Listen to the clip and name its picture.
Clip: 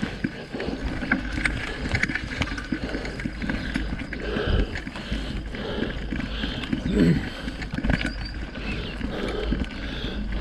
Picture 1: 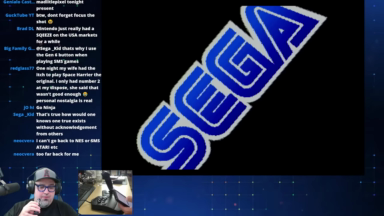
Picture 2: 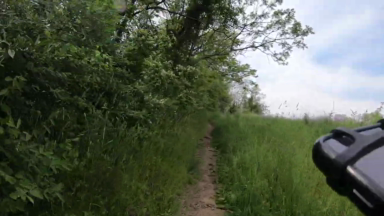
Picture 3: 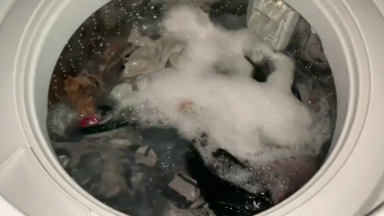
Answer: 2